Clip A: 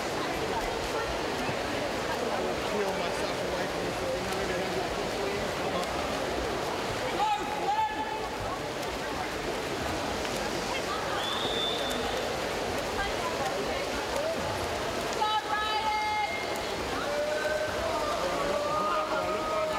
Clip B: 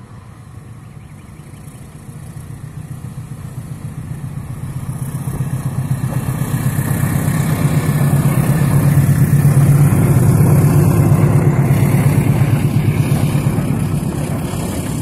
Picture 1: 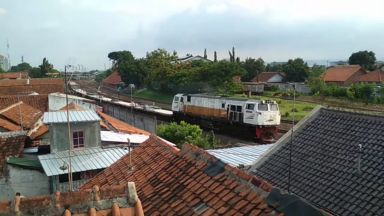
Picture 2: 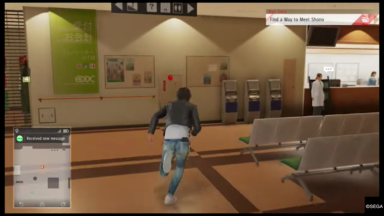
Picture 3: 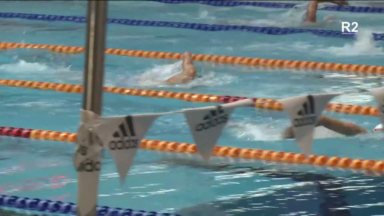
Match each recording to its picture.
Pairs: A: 3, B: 1